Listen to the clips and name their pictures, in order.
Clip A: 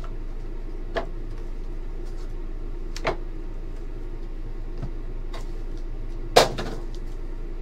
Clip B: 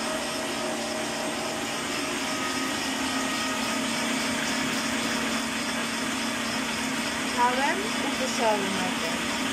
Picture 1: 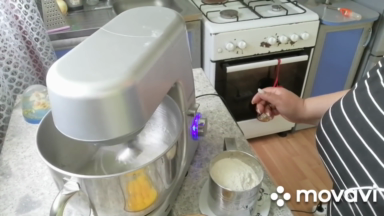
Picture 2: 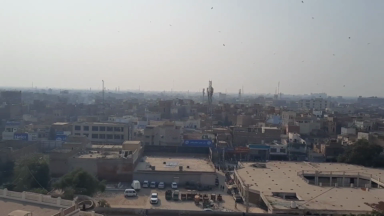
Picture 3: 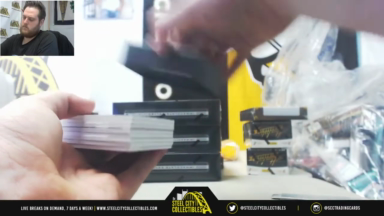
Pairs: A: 3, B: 1